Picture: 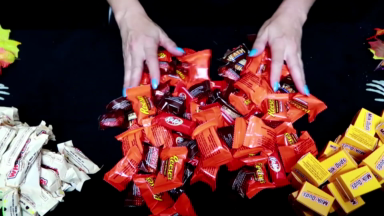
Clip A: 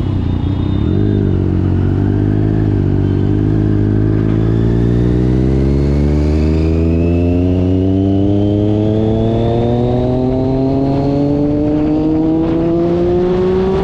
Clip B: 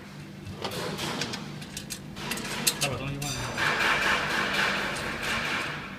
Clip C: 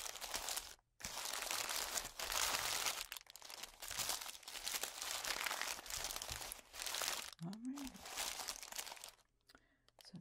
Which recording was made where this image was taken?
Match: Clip C